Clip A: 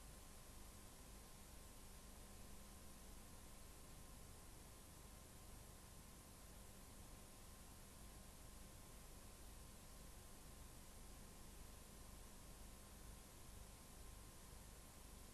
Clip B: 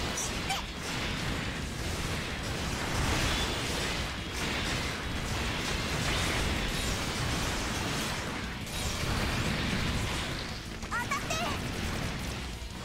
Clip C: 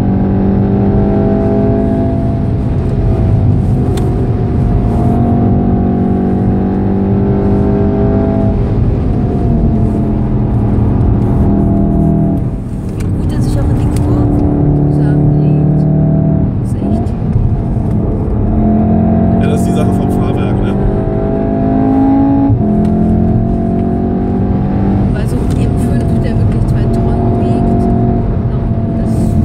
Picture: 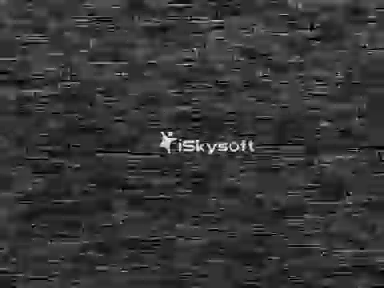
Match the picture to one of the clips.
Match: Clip A